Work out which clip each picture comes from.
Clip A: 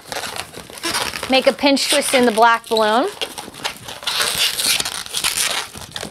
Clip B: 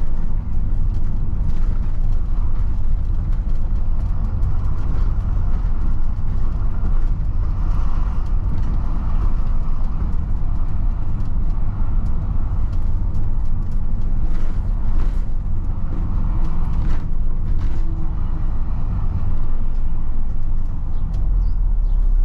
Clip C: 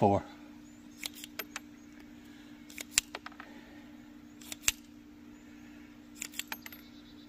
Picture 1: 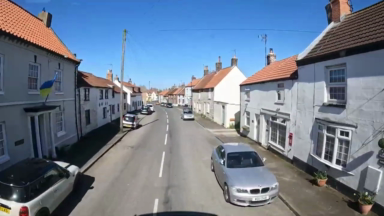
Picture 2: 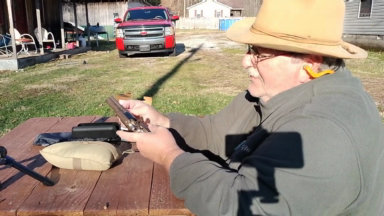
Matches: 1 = B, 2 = C